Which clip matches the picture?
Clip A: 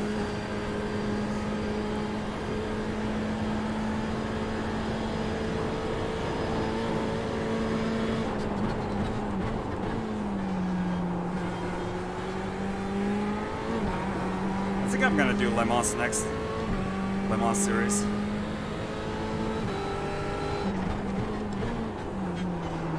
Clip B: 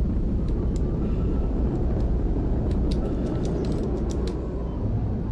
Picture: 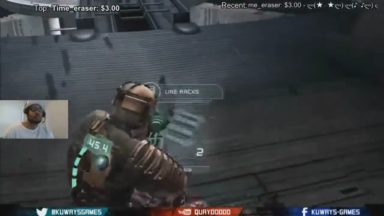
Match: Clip B